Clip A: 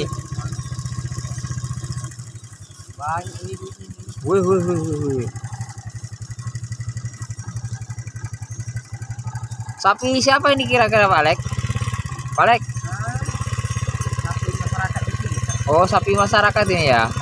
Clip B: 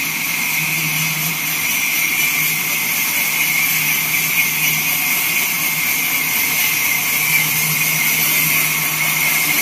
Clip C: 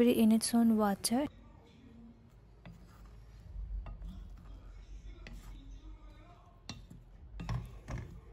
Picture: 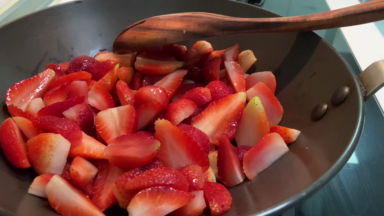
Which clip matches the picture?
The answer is C